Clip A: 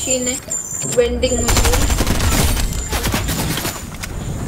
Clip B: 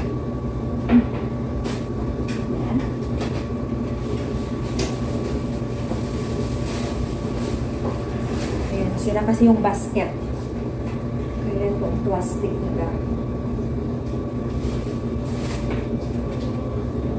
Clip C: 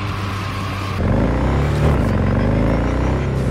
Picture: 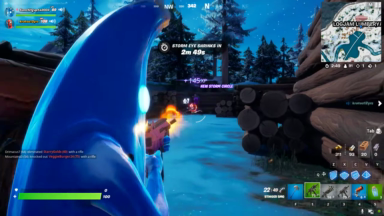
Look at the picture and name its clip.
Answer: A